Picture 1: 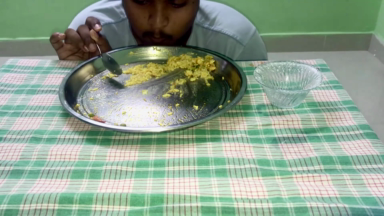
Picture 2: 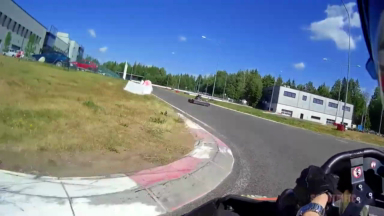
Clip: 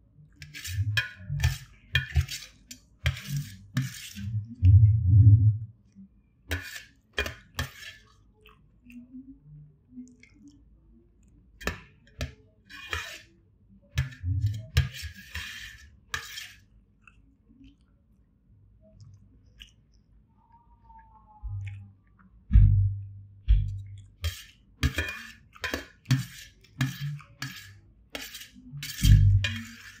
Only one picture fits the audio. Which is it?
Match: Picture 1